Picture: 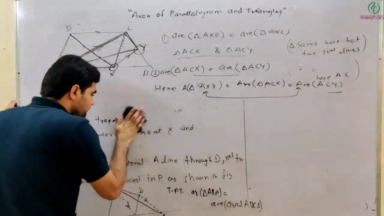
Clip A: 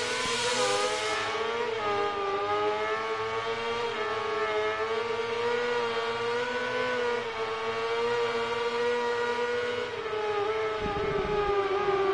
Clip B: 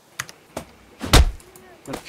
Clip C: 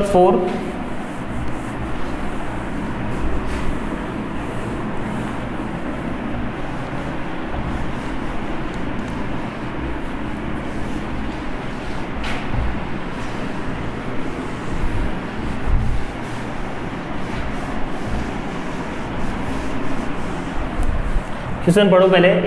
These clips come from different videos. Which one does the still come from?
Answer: C